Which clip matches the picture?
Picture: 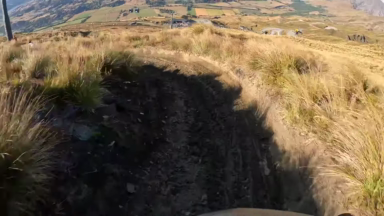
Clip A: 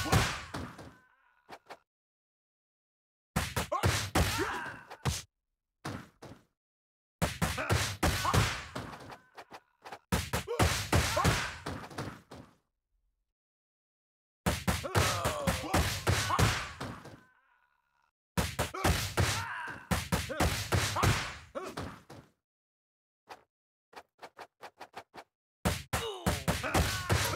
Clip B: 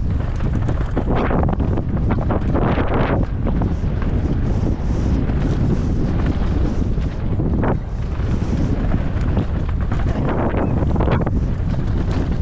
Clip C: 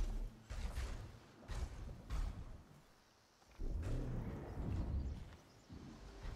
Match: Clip B